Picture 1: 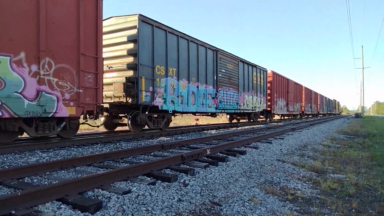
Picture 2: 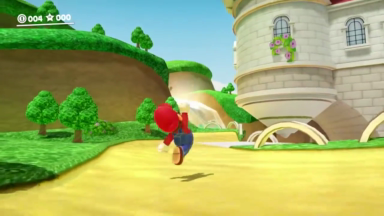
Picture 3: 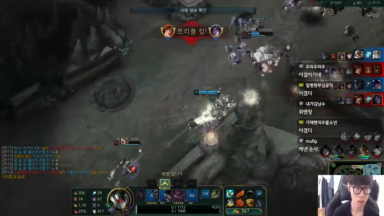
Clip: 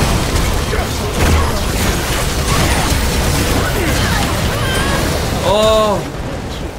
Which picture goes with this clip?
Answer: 3